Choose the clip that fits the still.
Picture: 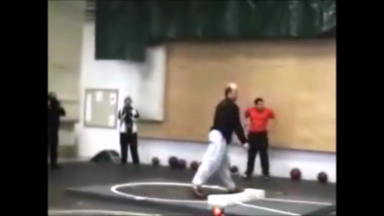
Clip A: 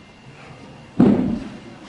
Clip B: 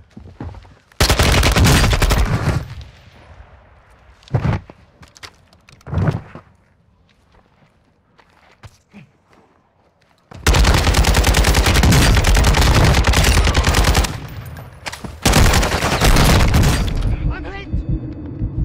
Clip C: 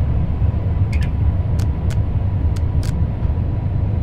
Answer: A